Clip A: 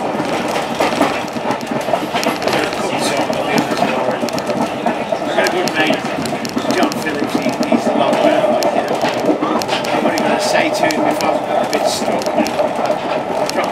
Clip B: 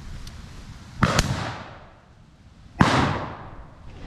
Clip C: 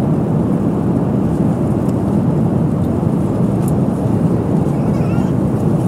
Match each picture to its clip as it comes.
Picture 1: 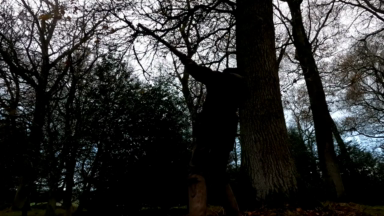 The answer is B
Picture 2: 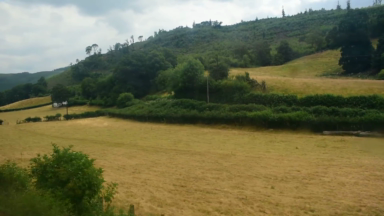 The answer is A